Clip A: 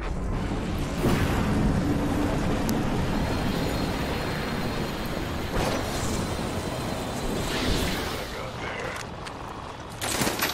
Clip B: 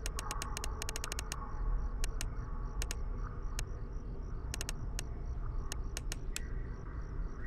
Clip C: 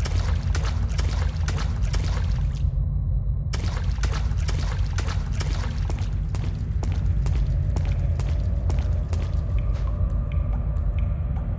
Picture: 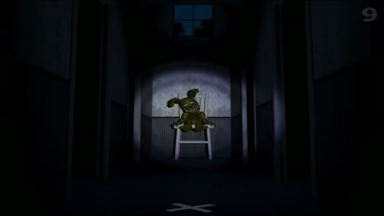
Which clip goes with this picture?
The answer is B